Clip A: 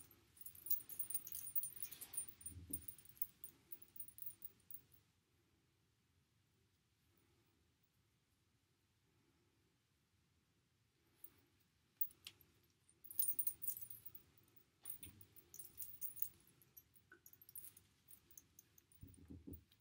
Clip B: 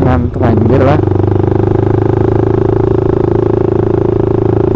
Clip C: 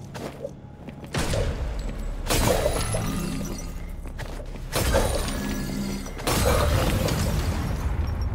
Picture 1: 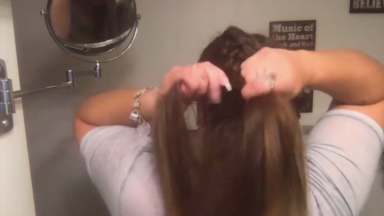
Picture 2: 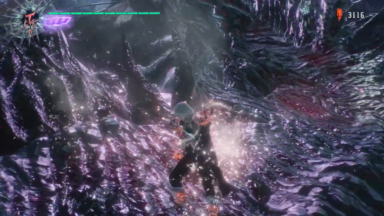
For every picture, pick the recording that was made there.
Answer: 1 A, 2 C